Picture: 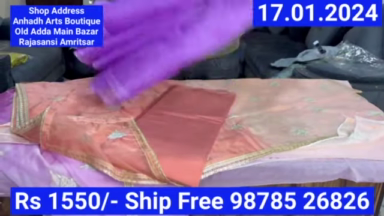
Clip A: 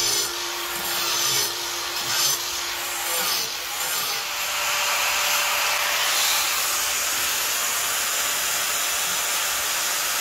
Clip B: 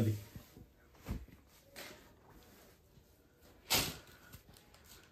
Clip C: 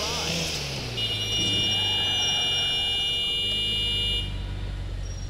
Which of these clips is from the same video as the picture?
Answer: B